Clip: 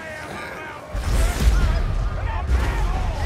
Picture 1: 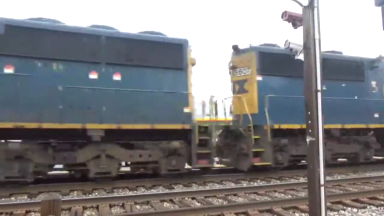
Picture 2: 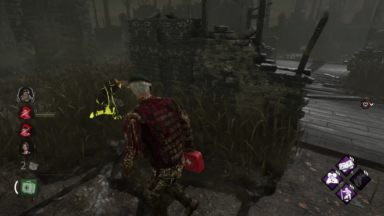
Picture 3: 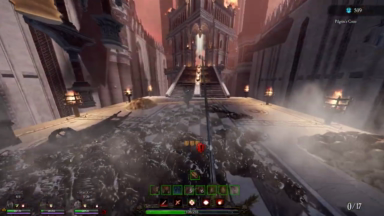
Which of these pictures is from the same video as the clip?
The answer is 3